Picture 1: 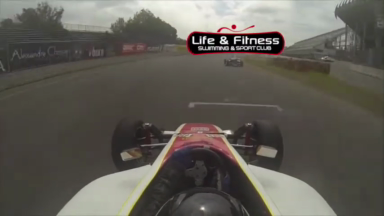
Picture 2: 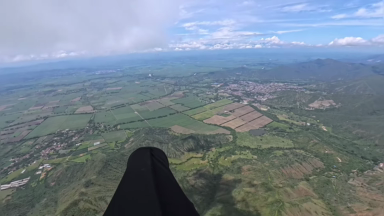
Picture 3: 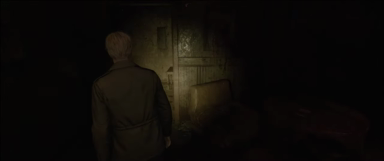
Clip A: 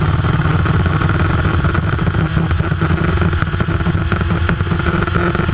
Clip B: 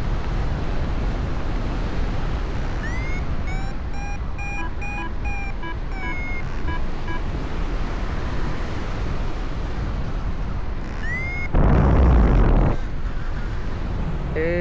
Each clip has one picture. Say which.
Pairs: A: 1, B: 2